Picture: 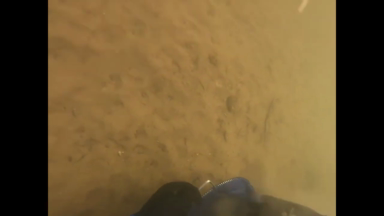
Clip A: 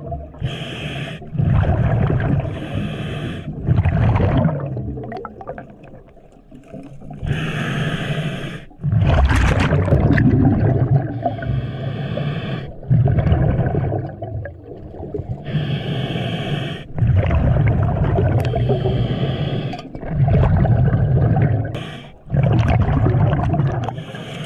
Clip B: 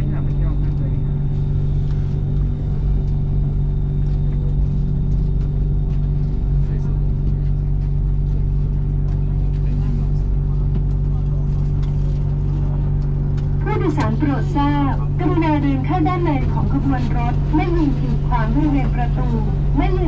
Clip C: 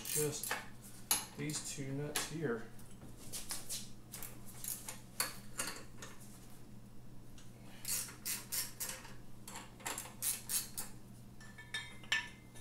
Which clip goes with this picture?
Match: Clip A